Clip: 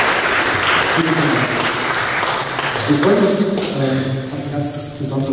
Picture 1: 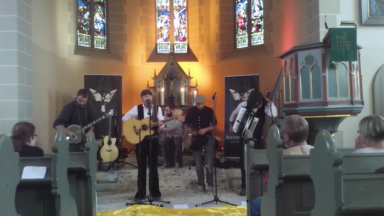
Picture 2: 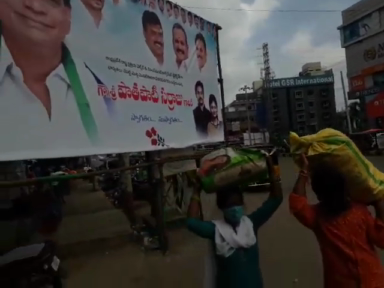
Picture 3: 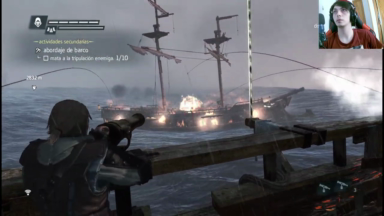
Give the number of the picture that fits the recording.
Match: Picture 1